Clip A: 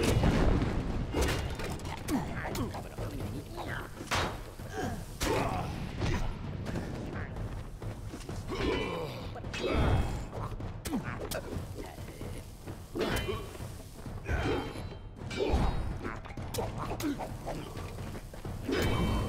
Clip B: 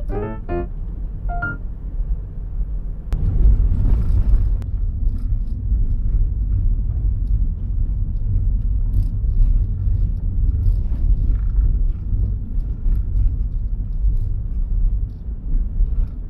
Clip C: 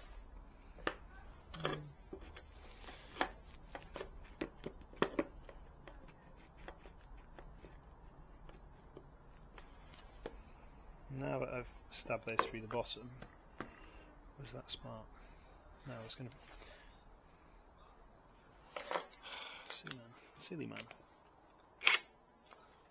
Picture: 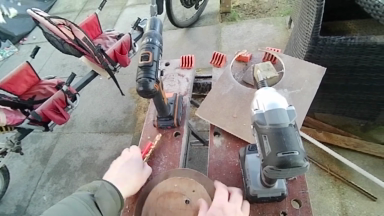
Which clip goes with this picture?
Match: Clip C